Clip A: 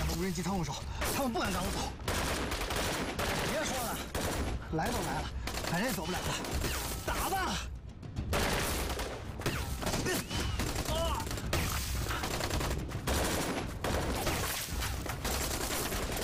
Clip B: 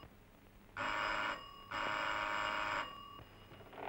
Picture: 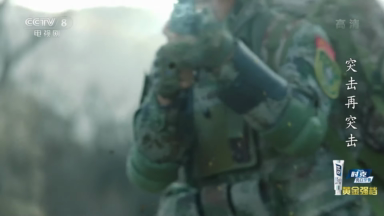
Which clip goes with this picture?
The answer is A